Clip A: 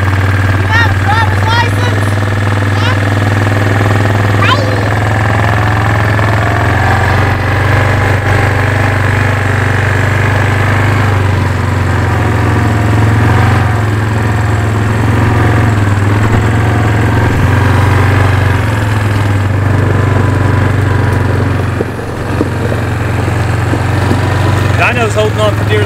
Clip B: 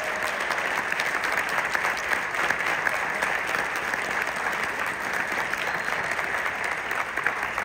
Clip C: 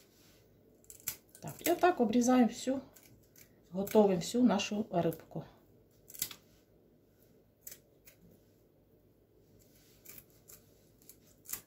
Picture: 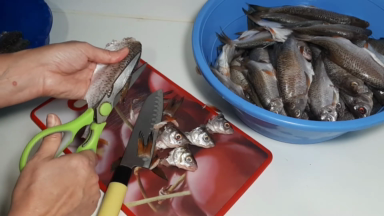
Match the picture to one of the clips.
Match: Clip C